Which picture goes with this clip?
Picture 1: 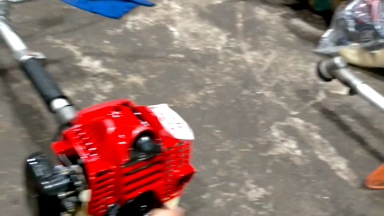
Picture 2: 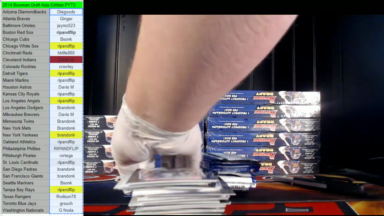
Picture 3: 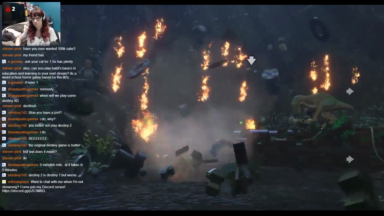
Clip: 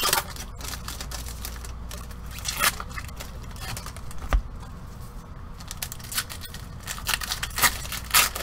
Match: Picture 2